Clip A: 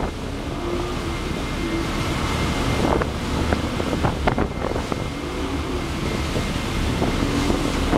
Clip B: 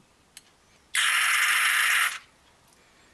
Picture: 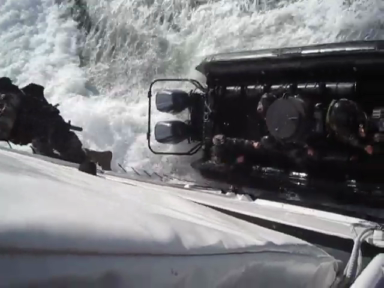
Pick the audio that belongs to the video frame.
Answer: A